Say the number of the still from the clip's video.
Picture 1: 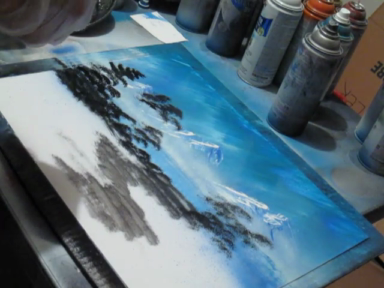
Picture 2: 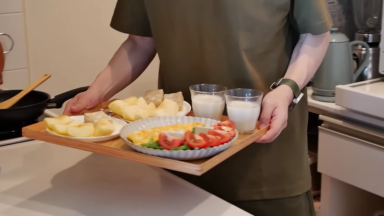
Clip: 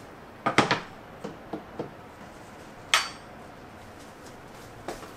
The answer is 2